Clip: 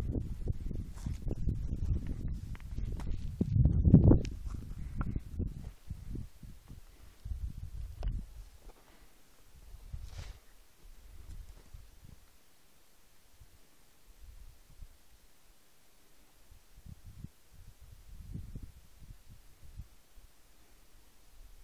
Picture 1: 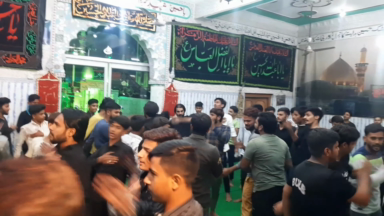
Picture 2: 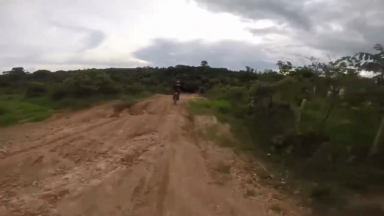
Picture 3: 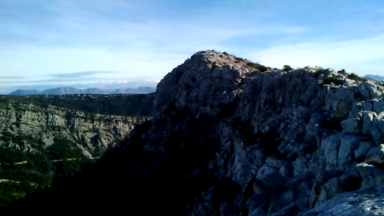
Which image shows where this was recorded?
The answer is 3